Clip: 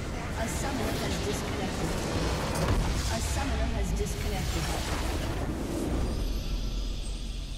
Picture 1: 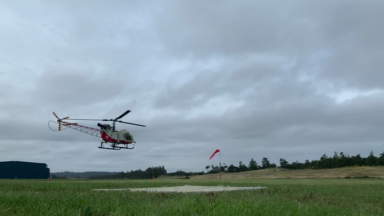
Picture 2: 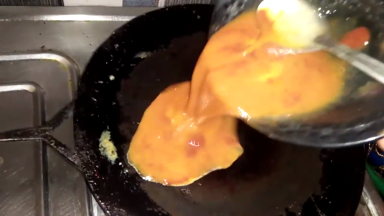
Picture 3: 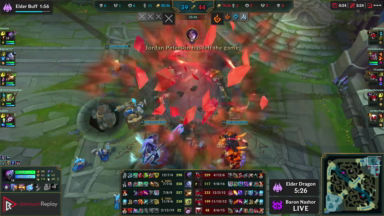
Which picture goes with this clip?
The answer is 3